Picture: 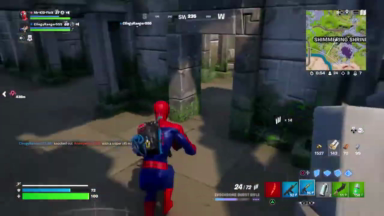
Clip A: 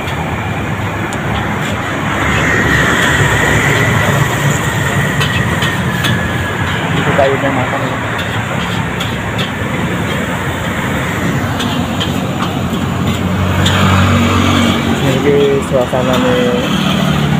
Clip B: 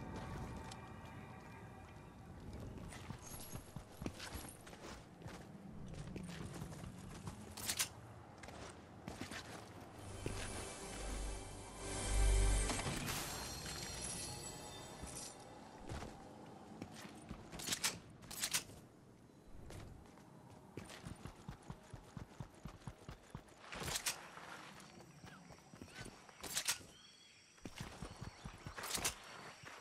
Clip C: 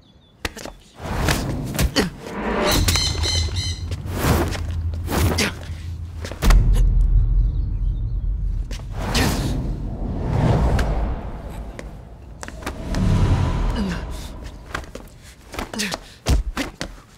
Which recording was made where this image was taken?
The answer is B